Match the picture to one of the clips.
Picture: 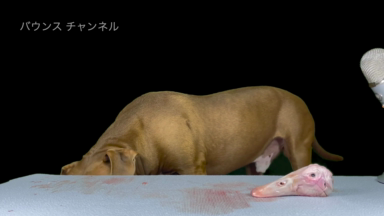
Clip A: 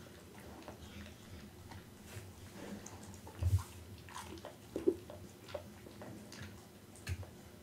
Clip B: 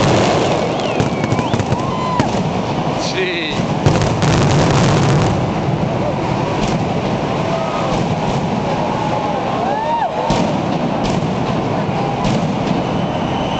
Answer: A